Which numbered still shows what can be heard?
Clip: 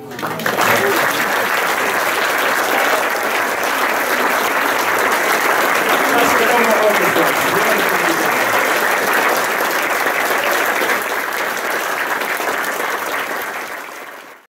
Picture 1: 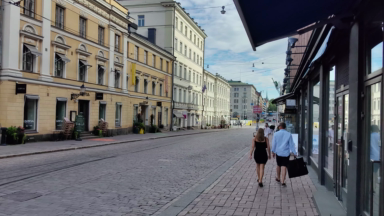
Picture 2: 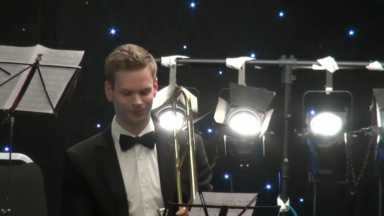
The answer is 2